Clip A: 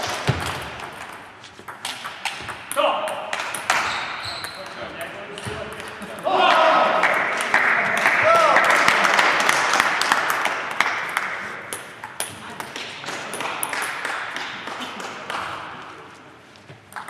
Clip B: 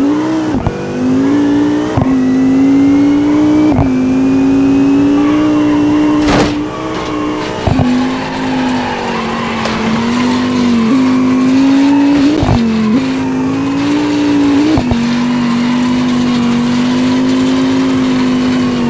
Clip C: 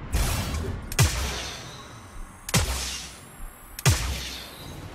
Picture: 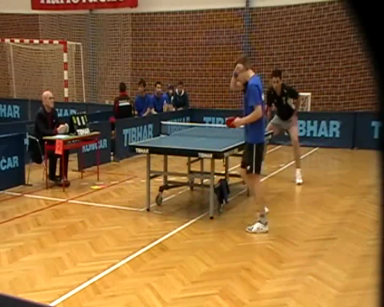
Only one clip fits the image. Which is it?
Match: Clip A